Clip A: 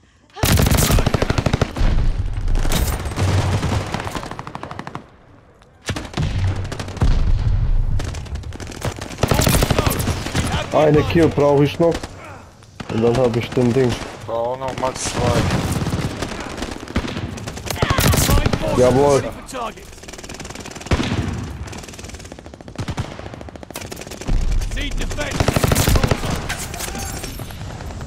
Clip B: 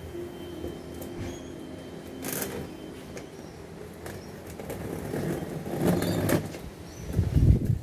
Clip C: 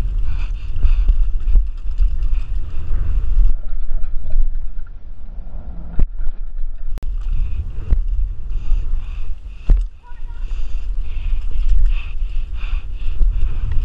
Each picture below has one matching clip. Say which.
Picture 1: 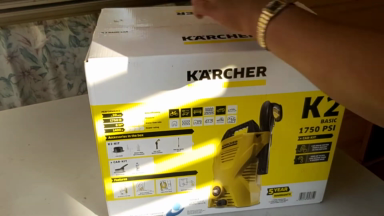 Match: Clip B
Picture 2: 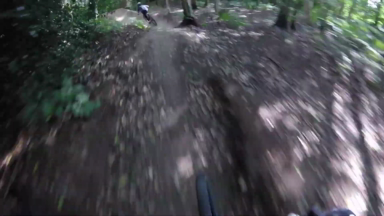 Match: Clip C